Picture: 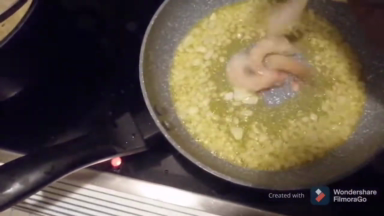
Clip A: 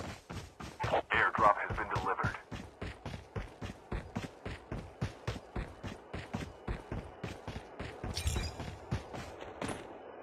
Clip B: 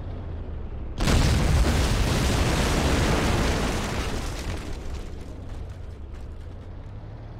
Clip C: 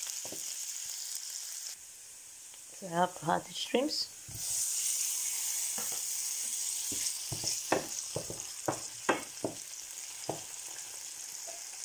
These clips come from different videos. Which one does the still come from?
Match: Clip C